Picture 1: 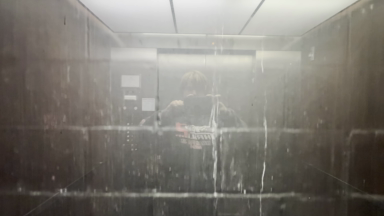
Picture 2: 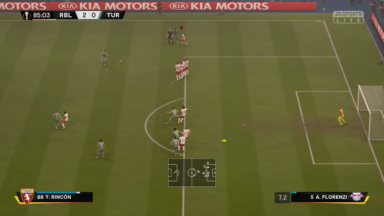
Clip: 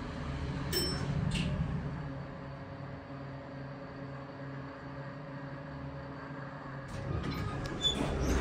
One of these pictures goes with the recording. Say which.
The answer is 1